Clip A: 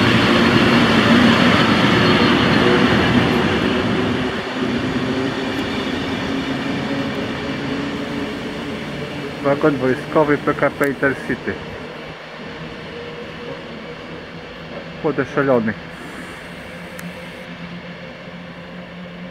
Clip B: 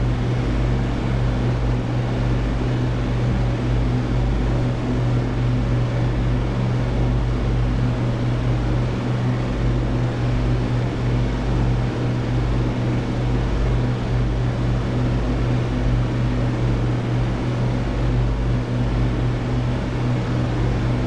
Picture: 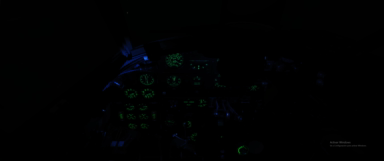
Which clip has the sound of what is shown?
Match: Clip B